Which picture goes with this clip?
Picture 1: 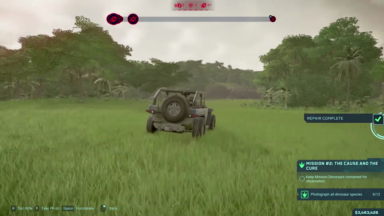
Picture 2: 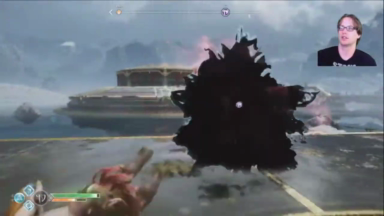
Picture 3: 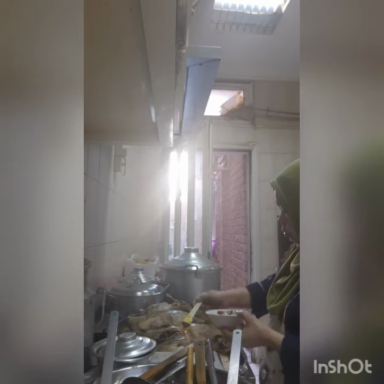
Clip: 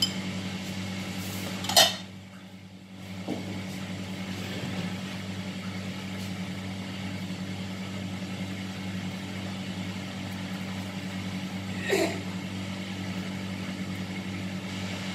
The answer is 3